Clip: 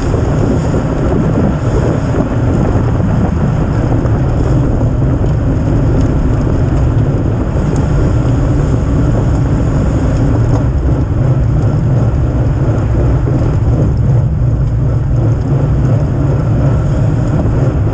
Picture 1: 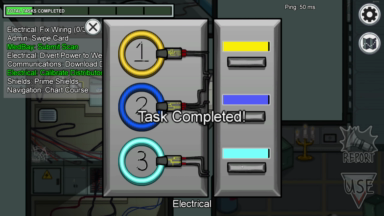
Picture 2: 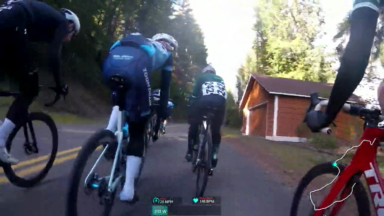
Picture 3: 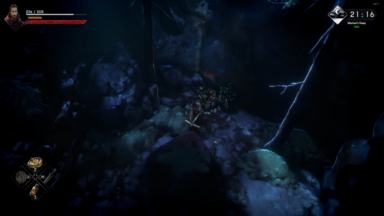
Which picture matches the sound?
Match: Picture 2